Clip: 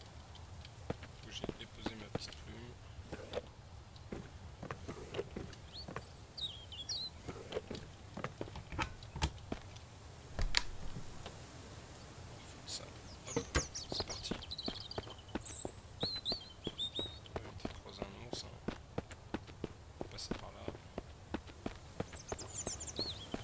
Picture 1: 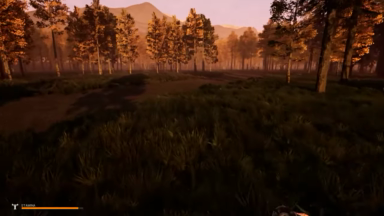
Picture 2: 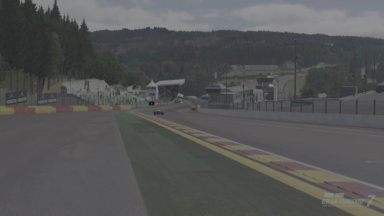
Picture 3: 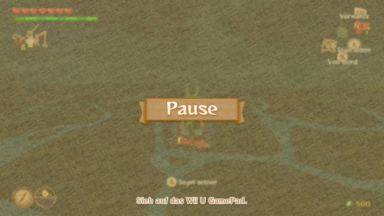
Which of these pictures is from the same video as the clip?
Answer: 1